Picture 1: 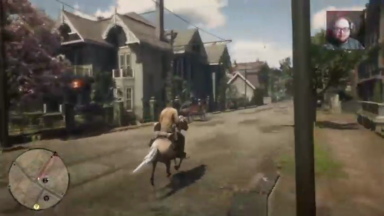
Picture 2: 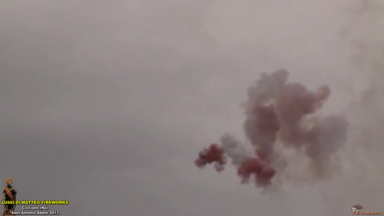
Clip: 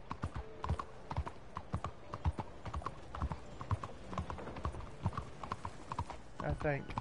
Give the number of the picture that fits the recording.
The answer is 1